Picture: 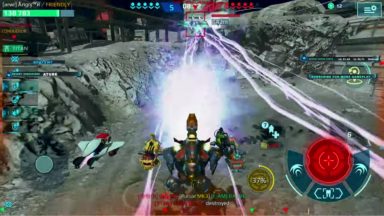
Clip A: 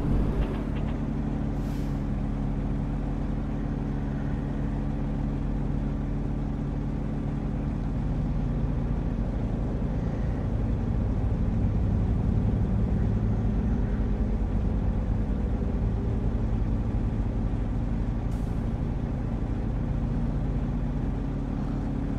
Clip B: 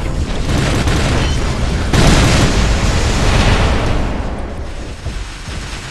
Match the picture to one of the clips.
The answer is B